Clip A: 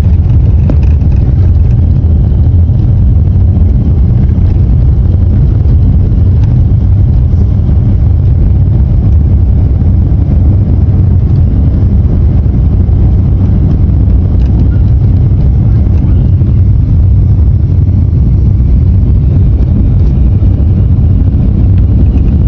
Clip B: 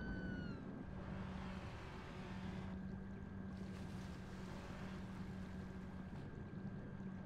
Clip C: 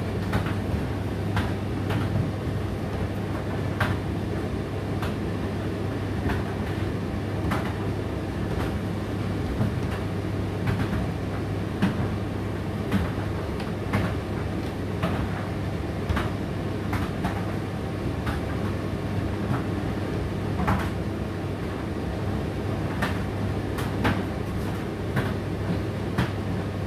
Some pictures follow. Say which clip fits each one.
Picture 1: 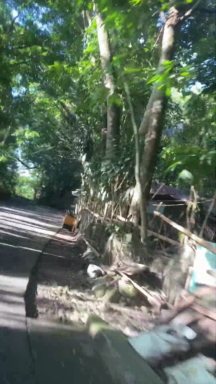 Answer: A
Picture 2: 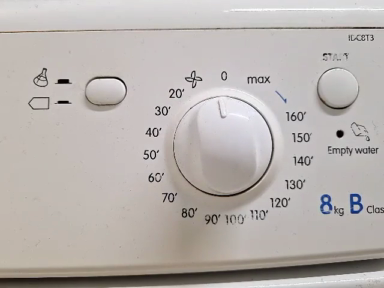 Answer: C